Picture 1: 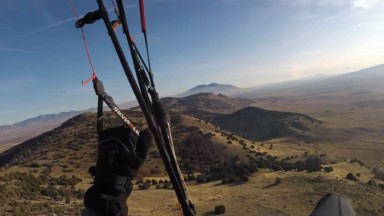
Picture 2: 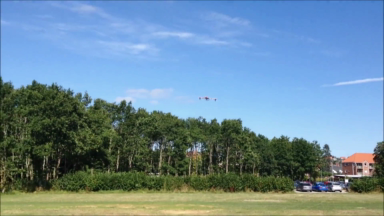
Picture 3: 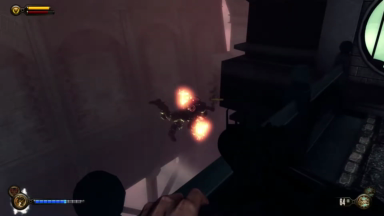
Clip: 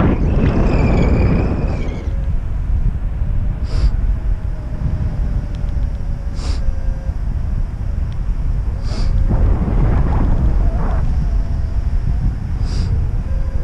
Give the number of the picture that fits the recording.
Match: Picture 1